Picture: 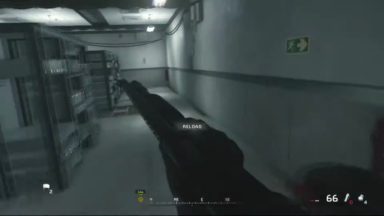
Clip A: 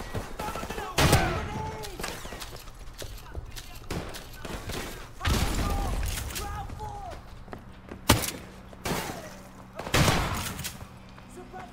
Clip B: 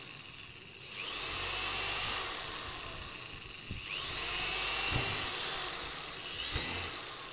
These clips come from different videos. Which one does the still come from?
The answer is A